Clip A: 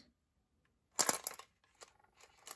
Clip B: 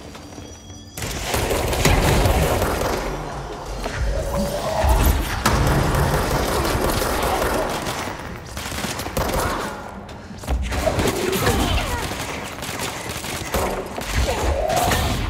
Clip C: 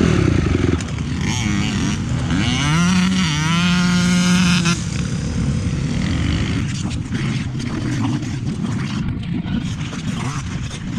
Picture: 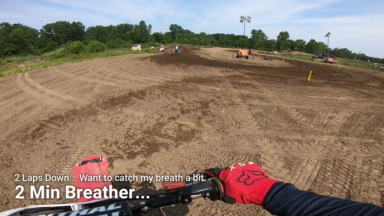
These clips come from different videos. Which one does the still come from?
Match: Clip C